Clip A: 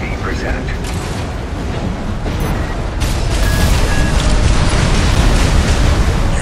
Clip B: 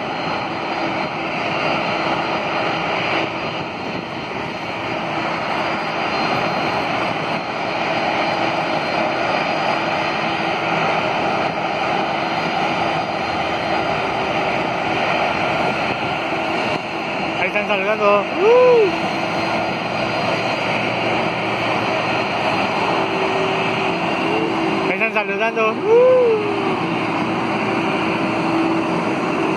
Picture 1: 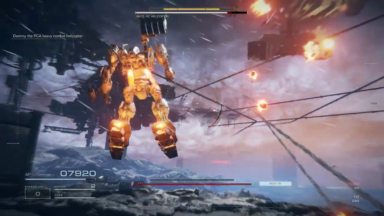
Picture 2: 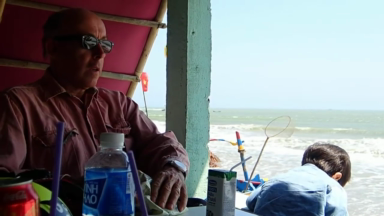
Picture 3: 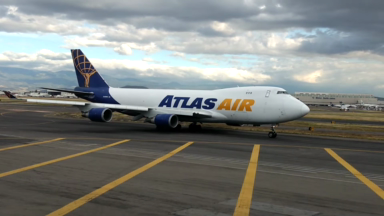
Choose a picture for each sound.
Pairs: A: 1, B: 3